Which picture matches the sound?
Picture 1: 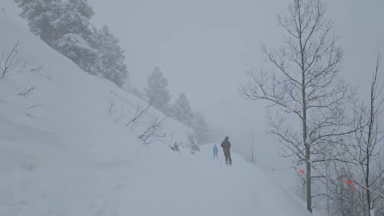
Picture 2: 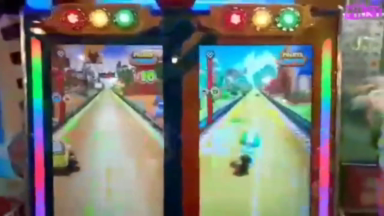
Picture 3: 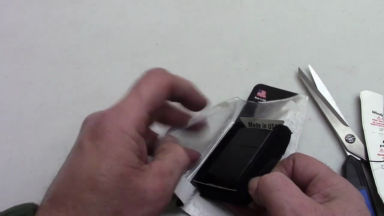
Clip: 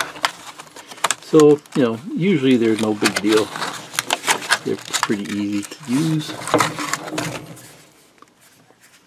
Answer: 3